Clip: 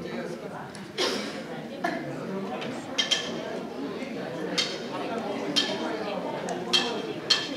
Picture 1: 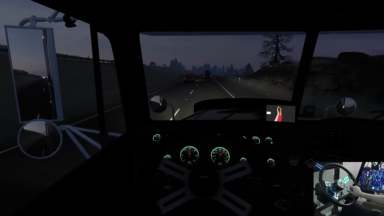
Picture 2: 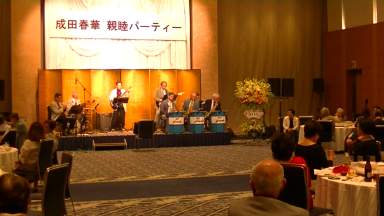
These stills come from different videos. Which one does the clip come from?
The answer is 2